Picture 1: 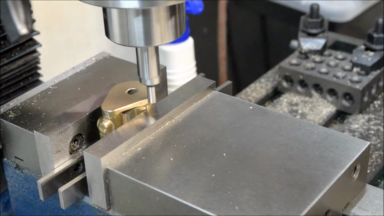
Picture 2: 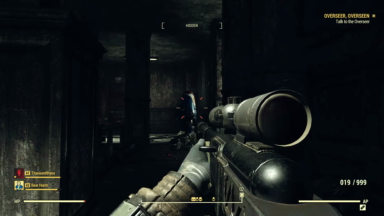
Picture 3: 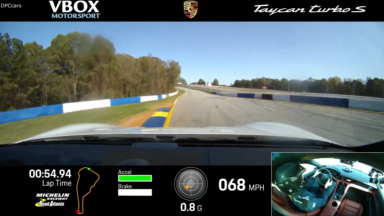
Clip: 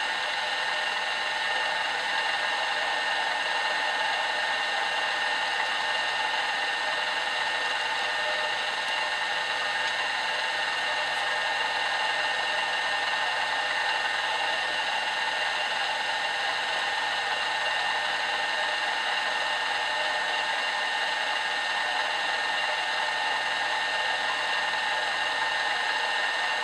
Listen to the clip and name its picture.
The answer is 1